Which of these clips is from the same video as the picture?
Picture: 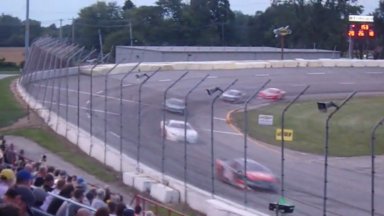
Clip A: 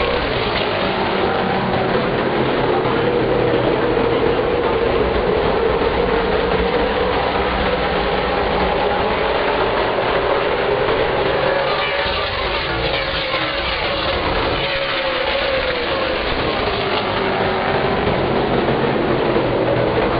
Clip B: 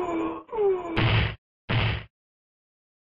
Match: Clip A